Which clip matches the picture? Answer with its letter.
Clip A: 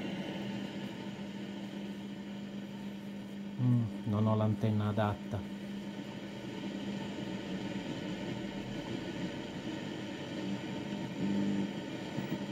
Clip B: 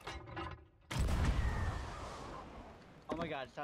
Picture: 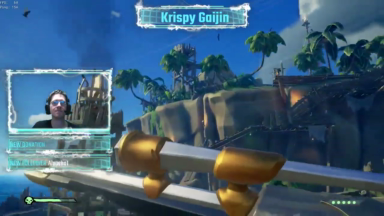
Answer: B